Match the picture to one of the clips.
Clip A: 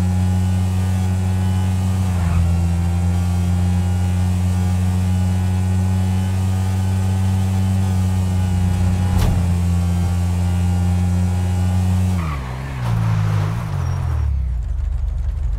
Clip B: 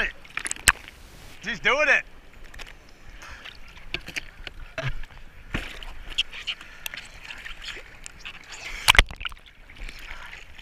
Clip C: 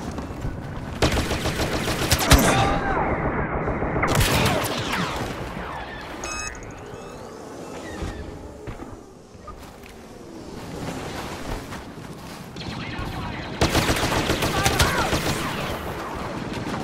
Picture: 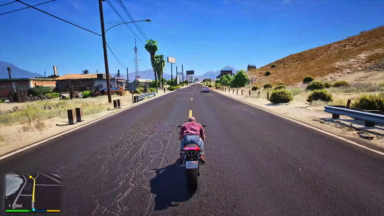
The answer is A